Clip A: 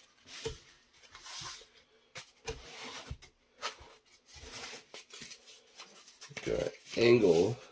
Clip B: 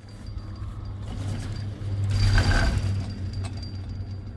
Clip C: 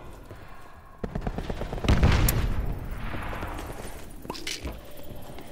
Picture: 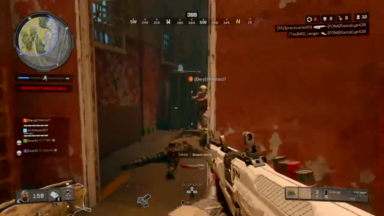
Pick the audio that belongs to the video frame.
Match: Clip C